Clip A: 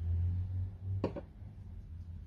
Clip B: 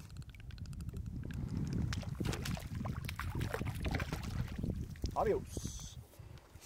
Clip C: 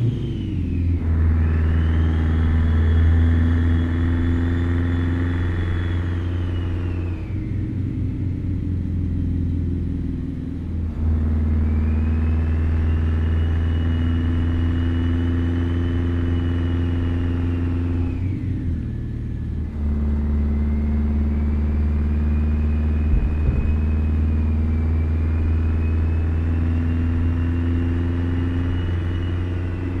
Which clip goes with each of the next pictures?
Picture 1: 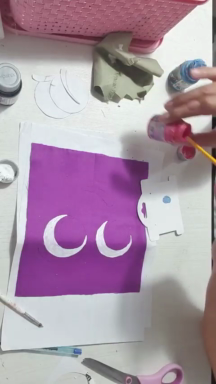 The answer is A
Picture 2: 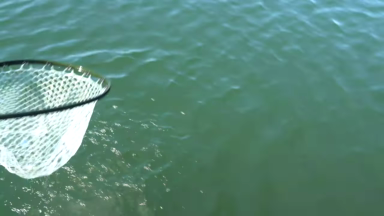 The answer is B